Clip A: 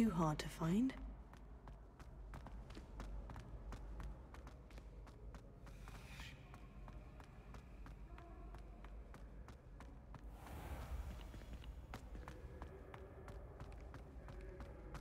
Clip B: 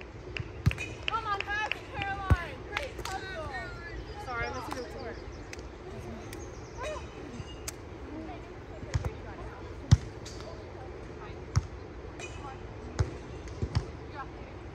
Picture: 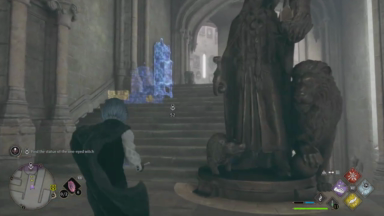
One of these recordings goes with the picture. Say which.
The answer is A